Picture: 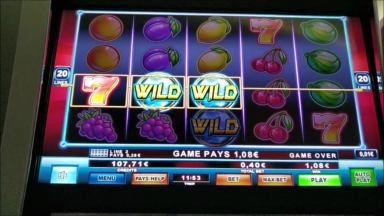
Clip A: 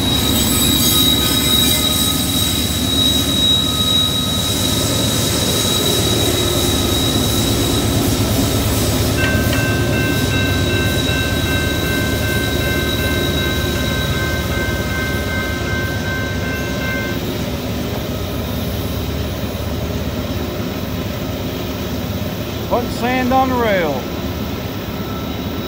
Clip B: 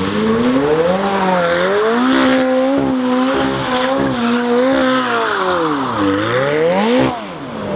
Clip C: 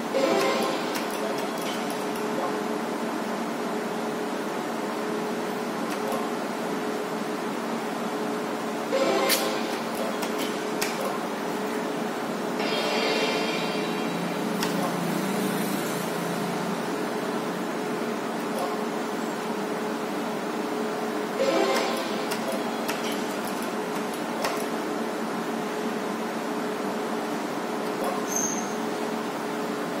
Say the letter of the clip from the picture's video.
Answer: C